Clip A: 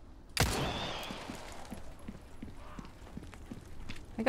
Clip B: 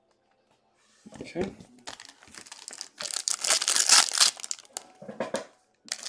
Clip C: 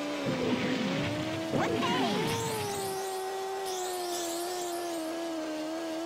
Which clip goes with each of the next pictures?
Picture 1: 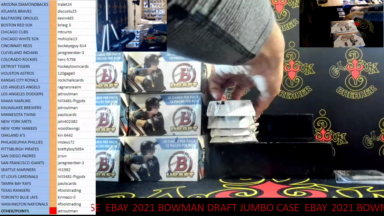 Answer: B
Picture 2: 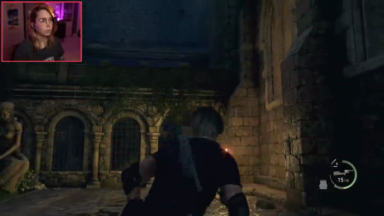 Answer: A